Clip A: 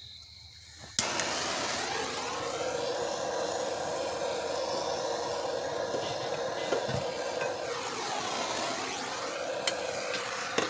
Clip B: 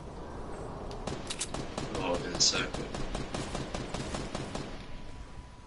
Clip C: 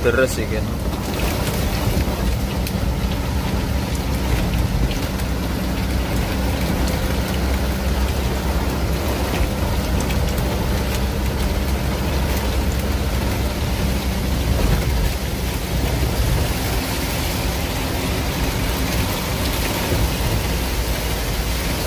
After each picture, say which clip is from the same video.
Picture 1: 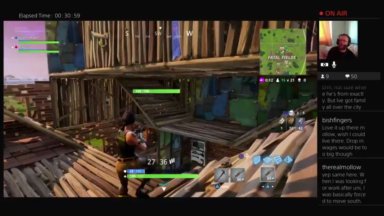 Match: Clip B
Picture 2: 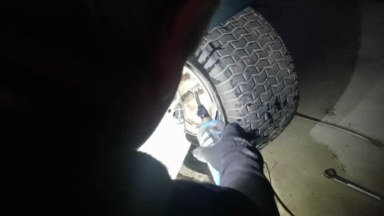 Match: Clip A